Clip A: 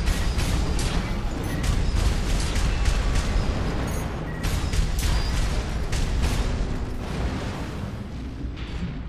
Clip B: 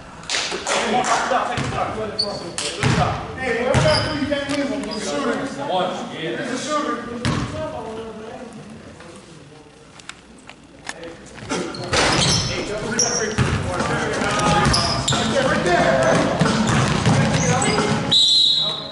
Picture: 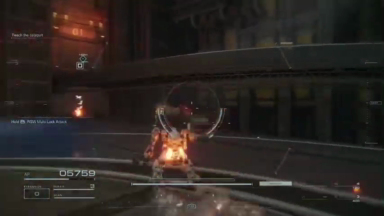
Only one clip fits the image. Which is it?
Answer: A